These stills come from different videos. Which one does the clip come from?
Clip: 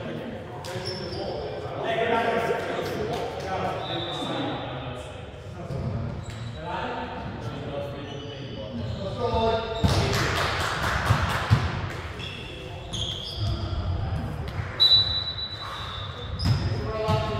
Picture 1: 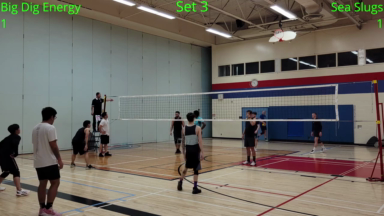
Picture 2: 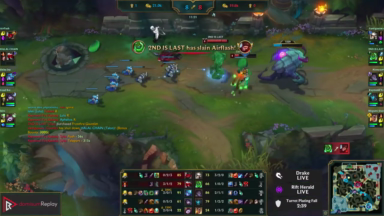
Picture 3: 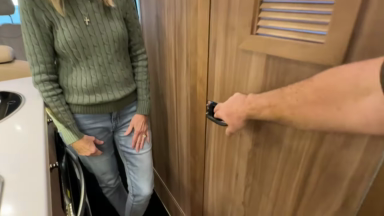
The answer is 1